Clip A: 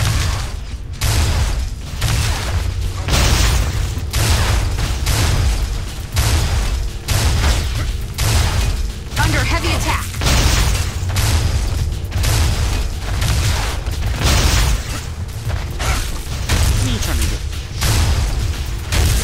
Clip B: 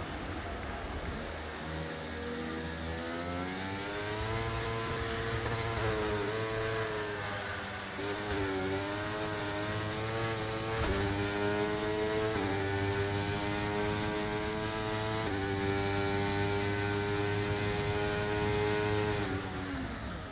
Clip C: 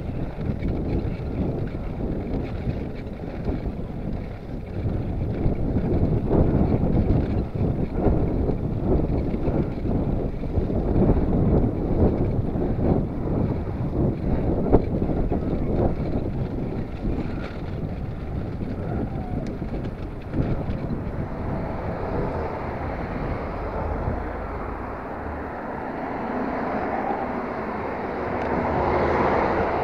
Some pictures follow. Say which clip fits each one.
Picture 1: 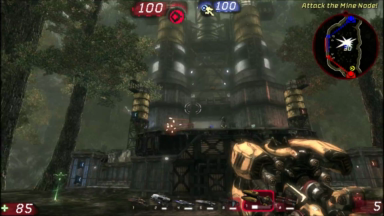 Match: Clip A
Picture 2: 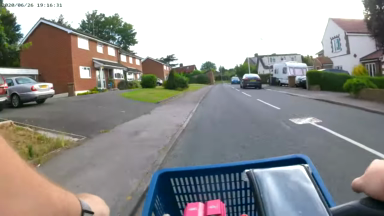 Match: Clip C